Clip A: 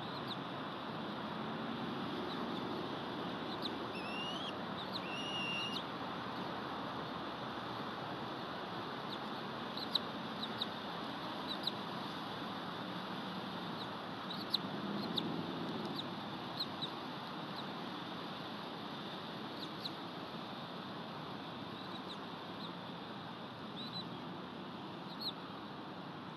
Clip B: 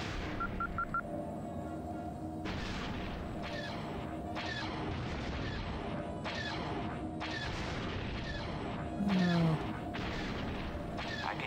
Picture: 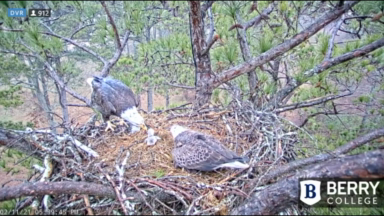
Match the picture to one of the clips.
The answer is A